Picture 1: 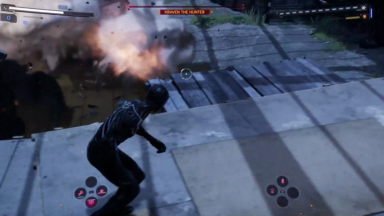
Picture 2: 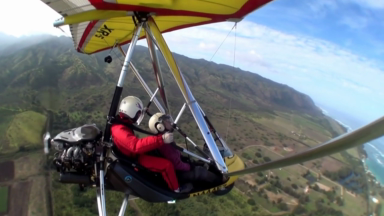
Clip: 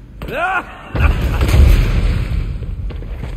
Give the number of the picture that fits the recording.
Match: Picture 1